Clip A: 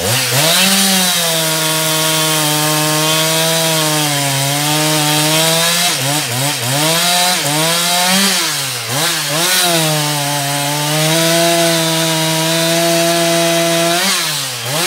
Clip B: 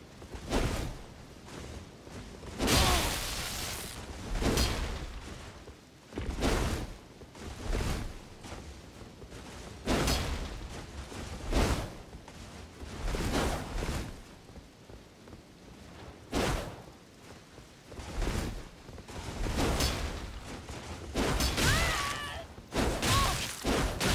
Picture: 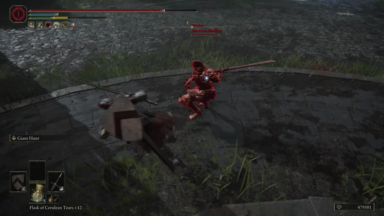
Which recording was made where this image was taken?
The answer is B